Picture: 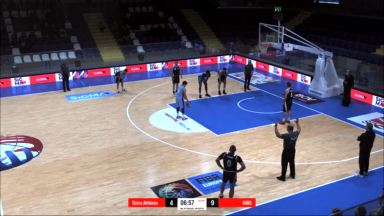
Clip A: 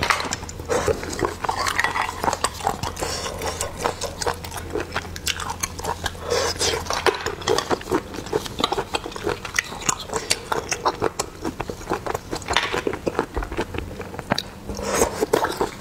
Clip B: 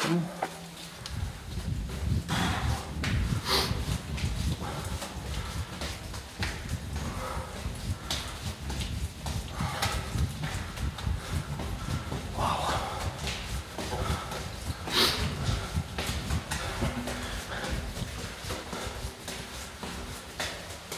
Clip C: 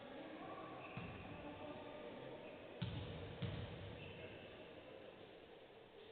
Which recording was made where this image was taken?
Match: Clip C